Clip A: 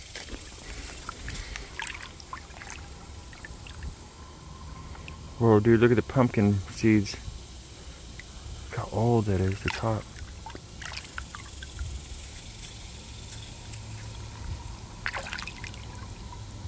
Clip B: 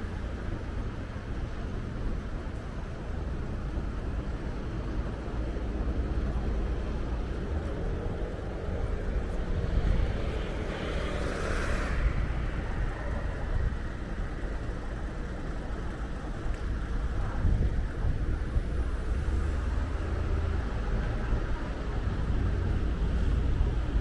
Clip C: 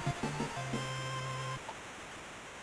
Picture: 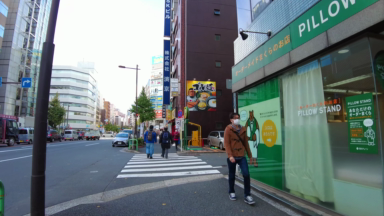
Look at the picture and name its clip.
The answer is B